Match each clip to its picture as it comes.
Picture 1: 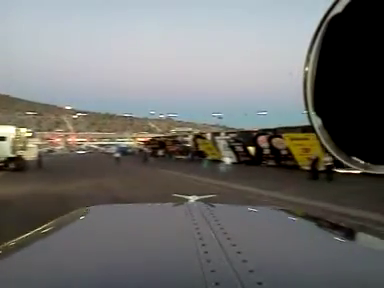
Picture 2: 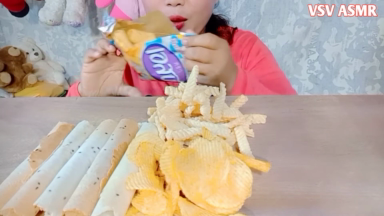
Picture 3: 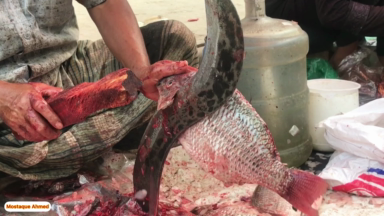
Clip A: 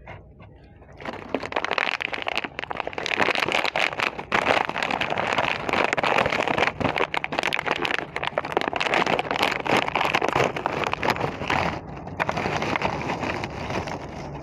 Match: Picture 2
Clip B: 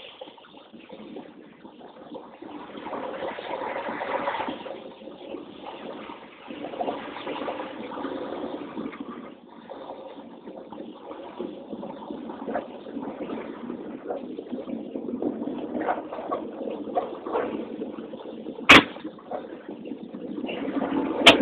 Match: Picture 1